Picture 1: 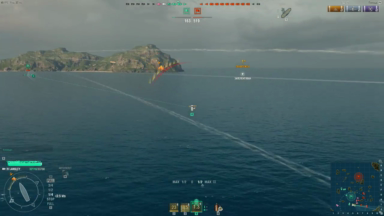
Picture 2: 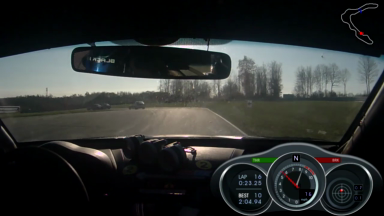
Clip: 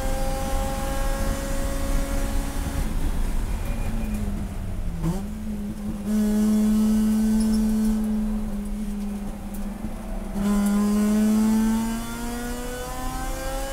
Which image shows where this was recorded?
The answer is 2